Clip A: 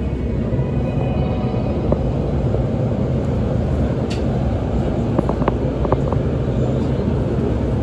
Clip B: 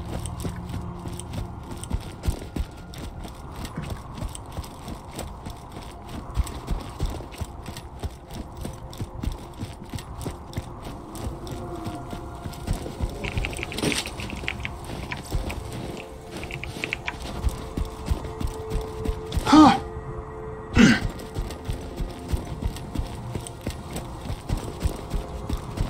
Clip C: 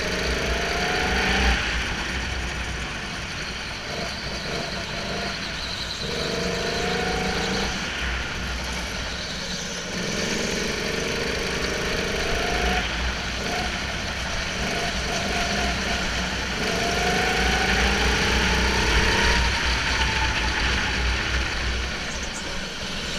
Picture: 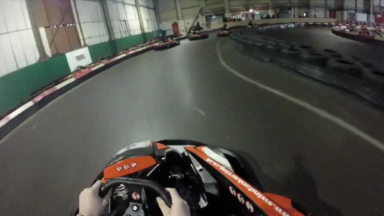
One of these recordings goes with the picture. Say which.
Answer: C